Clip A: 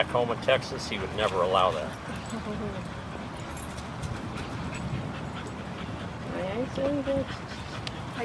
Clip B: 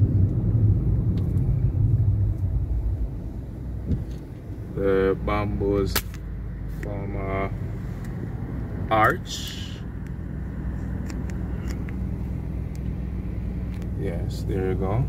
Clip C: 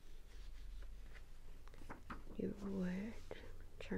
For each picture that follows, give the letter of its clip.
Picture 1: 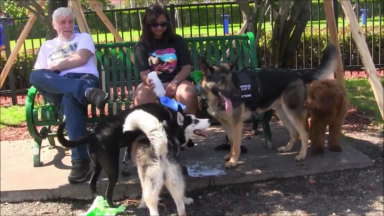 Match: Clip A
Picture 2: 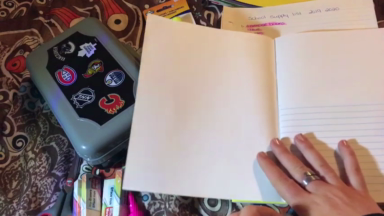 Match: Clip C